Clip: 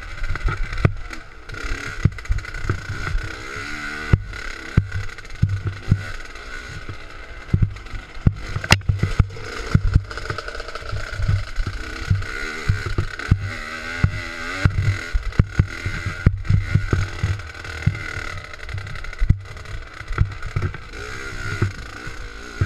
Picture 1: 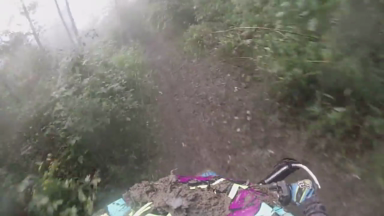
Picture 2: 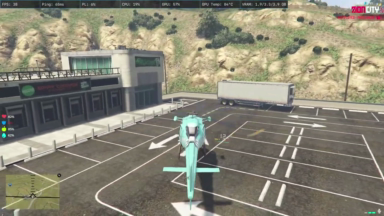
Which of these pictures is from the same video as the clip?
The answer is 1